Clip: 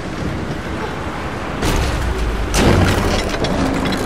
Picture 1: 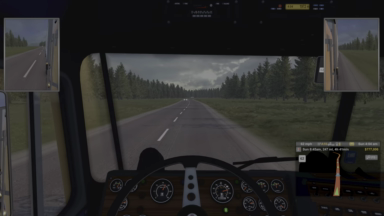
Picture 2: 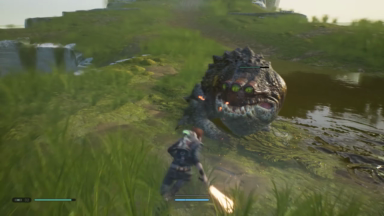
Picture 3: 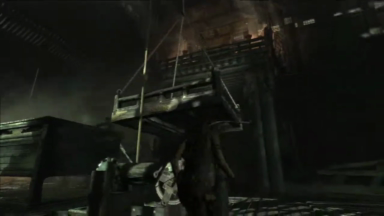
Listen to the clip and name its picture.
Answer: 3